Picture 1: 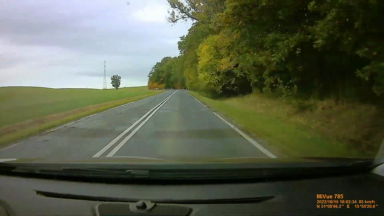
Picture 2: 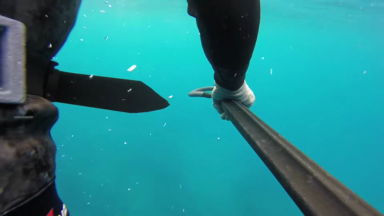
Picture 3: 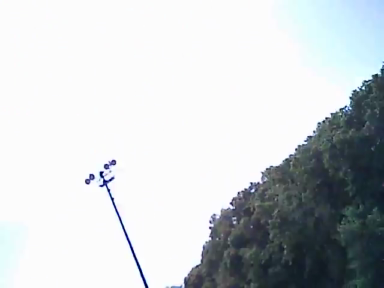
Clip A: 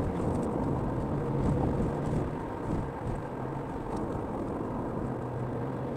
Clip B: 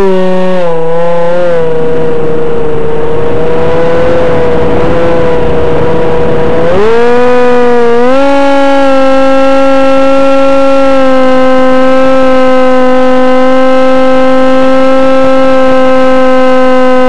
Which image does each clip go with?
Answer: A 1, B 3